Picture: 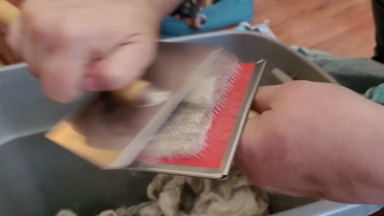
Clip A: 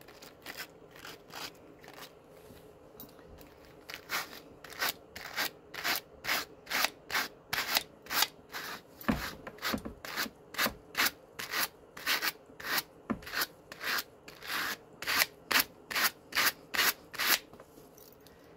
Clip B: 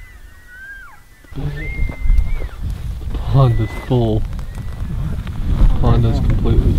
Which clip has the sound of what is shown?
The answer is A